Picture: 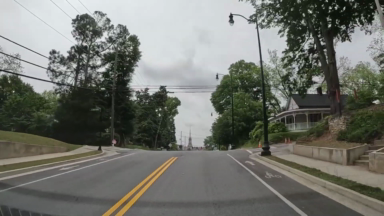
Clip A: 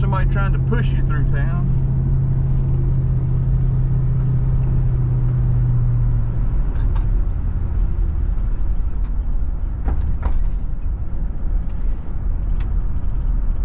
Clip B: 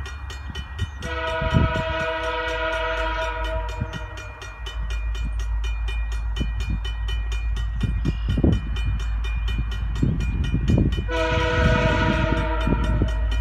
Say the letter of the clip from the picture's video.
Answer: A